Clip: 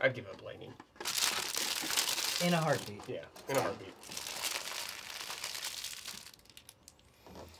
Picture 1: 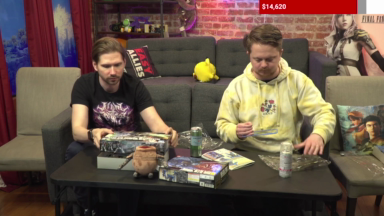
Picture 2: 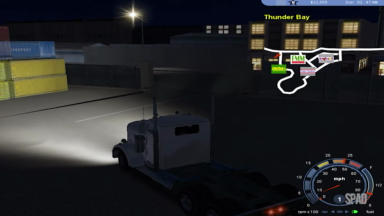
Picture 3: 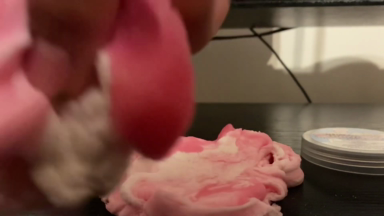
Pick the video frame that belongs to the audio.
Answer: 1